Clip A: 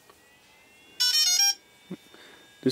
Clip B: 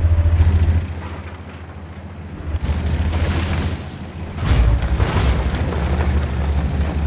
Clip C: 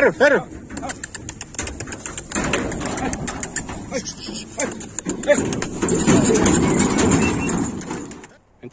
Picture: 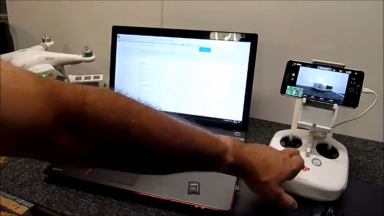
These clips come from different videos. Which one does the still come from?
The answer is A